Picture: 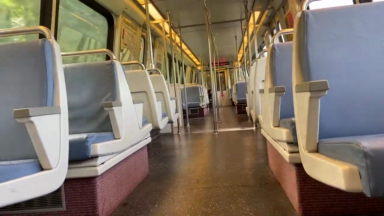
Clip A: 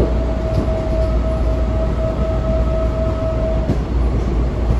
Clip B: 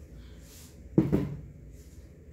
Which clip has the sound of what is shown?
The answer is A